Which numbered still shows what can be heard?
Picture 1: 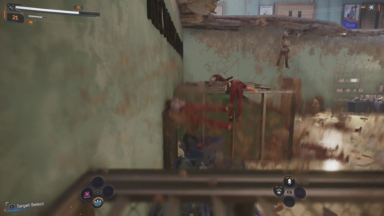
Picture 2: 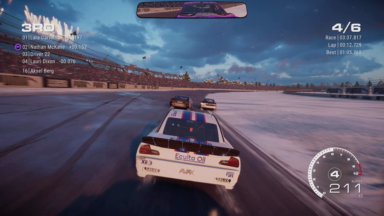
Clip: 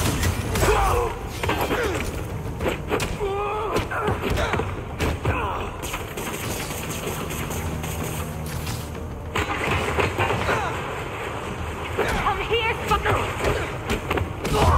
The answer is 1